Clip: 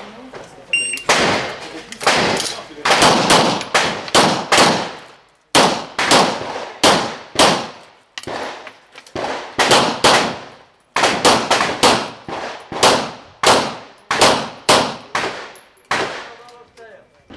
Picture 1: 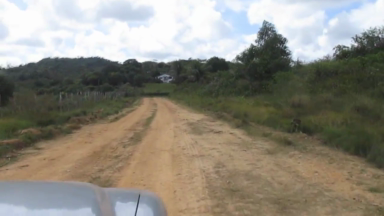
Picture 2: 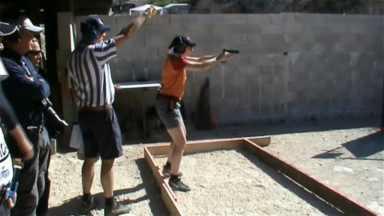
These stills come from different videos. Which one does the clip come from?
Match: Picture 2